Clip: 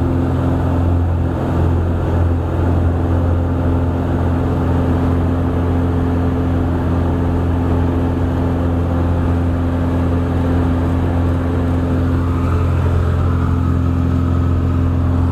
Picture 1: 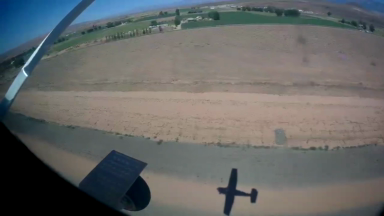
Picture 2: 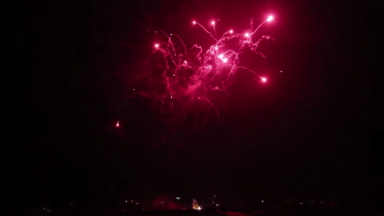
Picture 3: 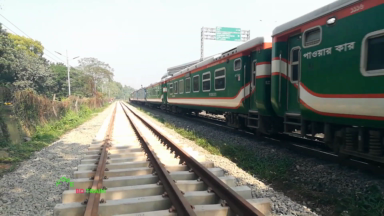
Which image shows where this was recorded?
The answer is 1